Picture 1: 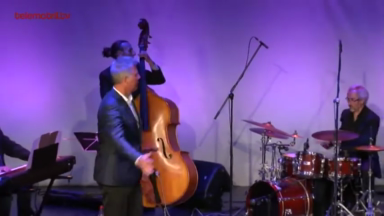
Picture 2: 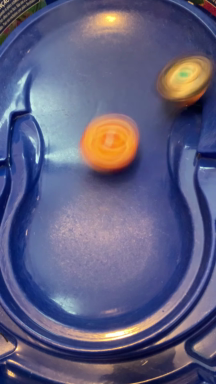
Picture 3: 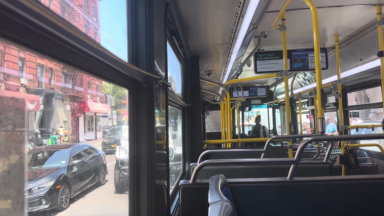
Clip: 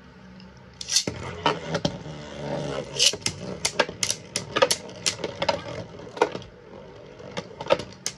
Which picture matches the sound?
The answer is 2